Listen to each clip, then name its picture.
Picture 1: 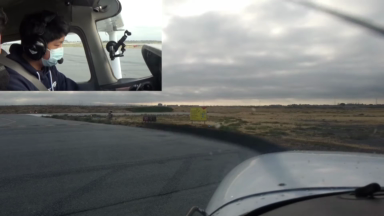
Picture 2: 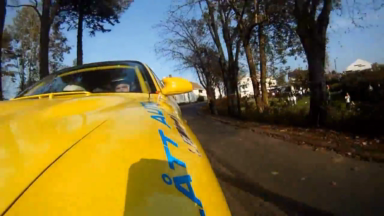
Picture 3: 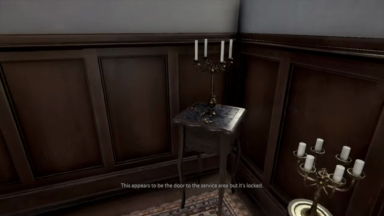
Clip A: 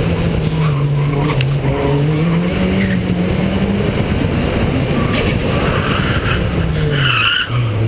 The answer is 2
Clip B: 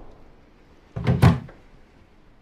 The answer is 3